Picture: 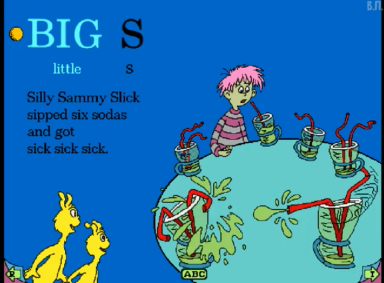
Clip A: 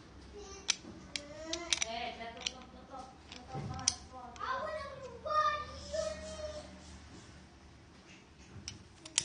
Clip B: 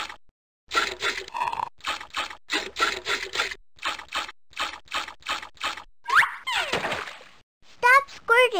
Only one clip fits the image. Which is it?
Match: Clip B